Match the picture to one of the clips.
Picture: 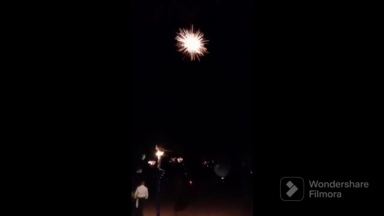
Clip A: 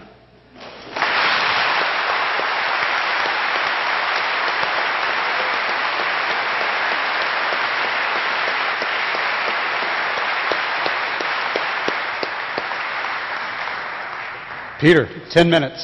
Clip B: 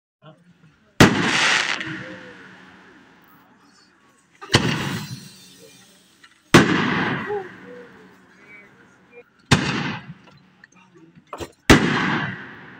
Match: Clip B